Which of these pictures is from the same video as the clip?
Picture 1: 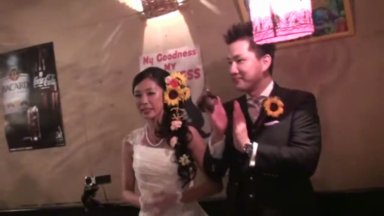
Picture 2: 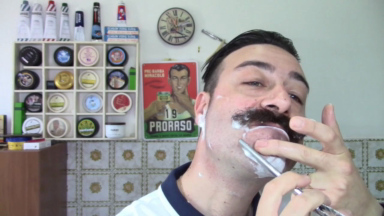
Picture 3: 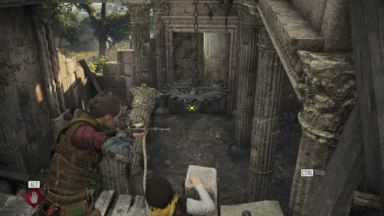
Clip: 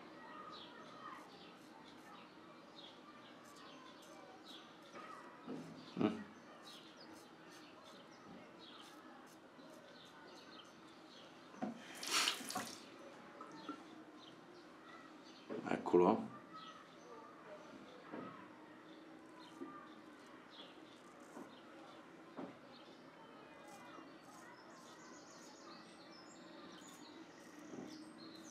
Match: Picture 2